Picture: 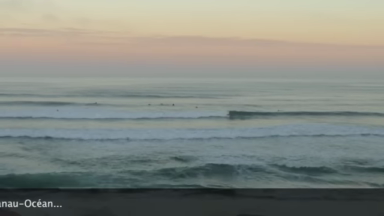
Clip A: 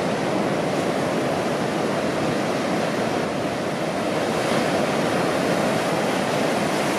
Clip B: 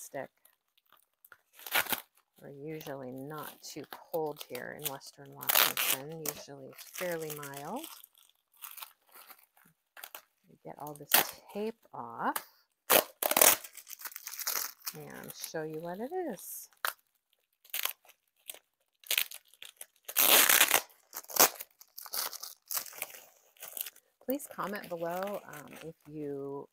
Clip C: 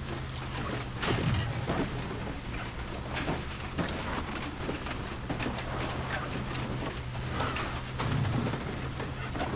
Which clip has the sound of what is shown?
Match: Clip A